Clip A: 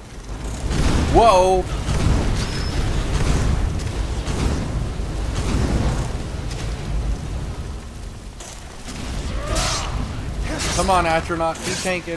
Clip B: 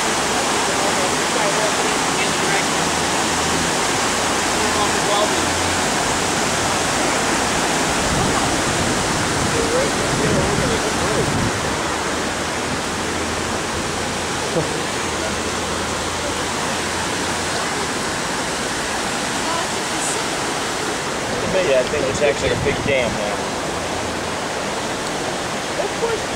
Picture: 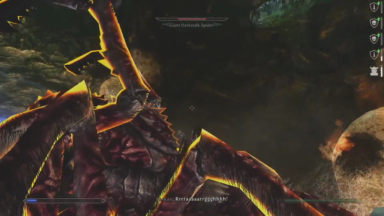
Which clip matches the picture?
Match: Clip A